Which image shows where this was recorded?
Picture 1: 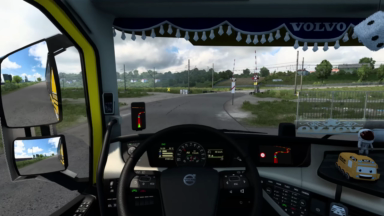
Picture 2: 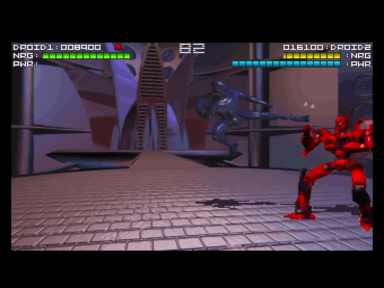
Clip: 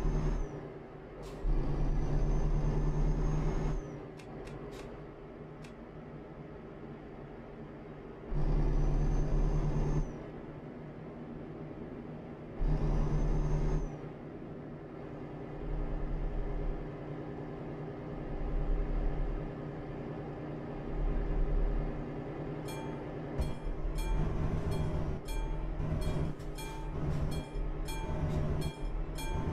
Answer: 1